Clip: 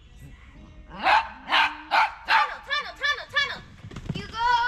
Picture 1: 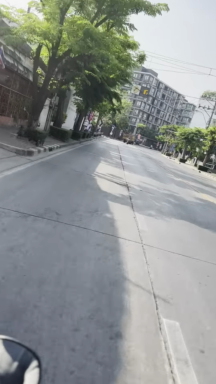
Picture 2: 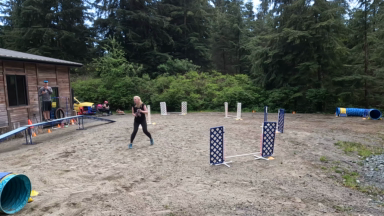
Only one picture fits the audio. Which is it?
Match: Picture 2